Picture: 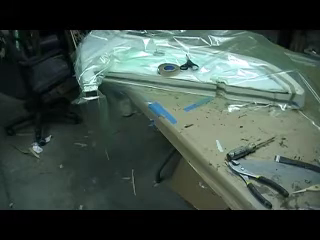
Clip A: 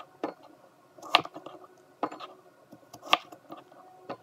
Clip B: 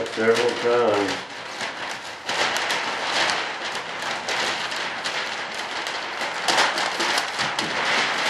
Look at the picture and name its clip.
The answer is B